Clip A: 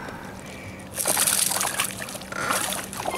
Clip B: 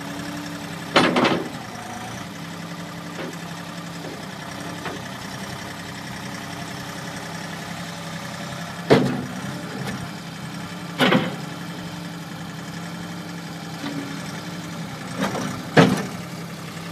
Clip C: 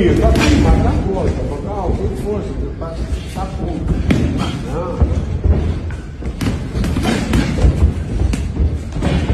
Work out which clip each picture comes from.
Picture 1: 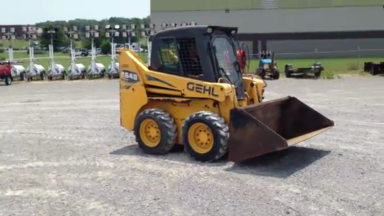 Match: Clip B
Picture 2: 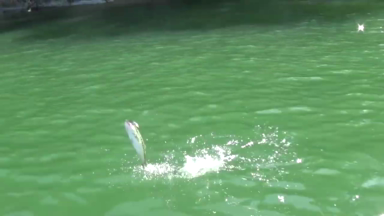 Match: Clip A